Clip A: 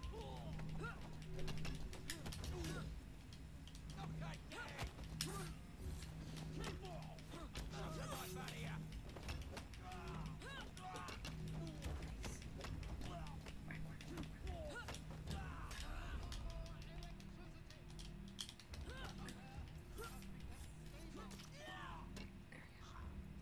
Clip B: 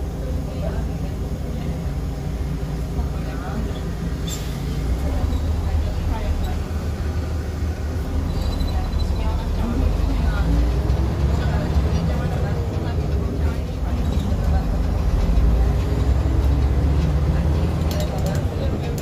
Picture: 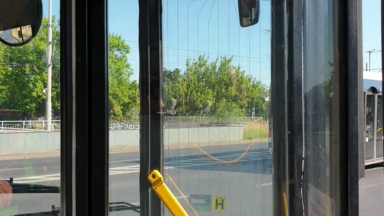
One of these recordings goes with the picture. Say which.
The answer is B